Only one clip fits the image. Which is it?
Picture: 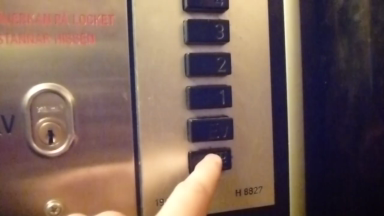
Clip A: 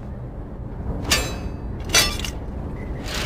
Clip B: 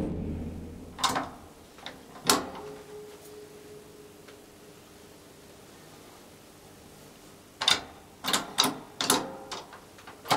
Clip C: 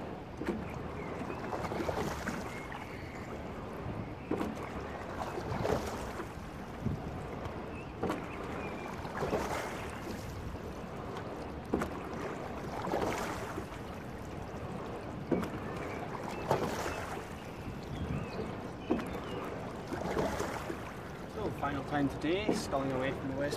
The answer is B